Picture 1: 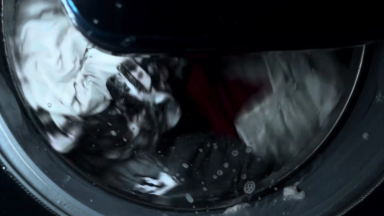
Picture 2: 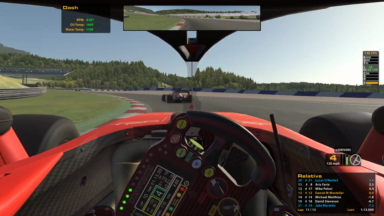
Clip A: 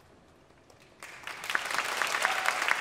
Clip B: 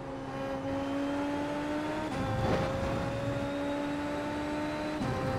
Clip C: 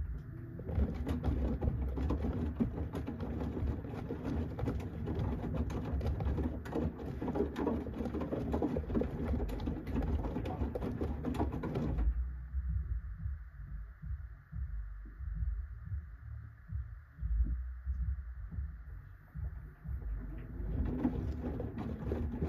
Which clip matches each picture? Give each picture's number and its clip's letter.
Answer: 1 C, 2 B